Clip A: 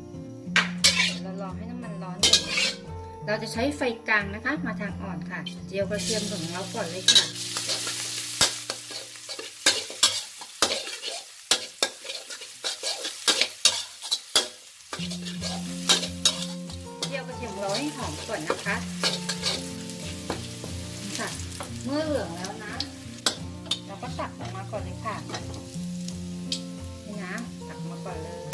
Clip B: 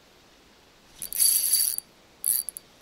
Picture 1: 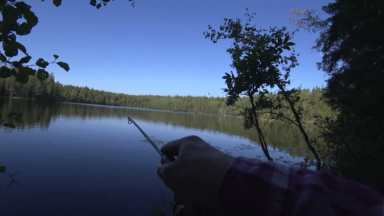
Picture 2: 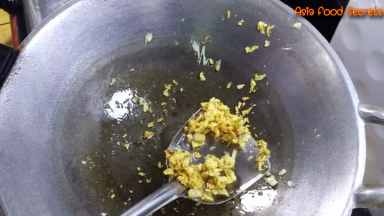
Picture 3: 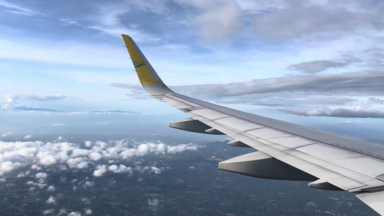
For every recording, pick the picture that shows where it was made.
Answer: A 2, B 1